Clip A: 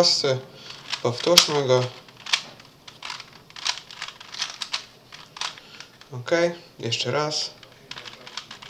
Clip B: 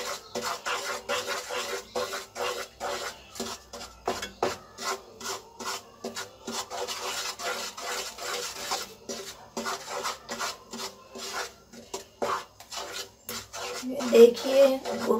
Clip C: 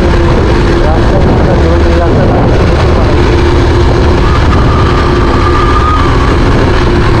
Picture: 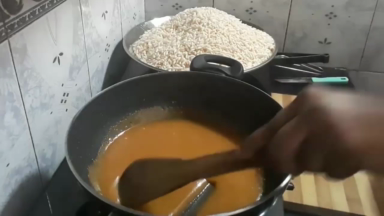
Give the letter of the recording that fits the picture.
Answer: B